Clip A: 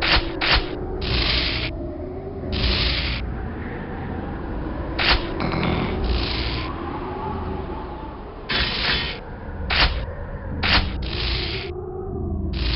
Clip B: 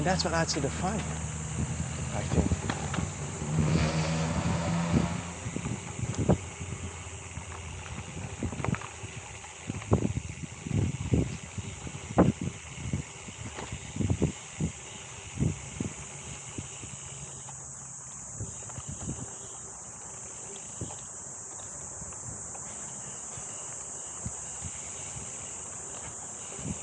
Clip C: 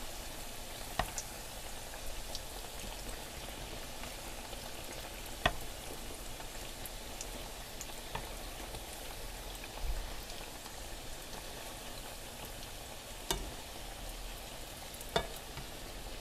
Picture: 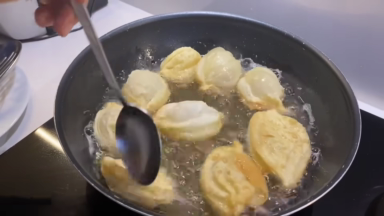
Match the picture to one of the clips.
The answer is C